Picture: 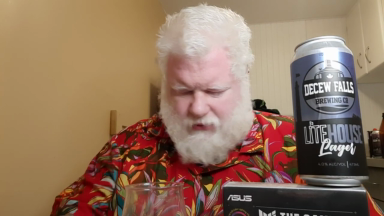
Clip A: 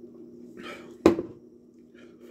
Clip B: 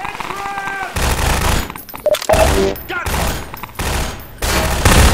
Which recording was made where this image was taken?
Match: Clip A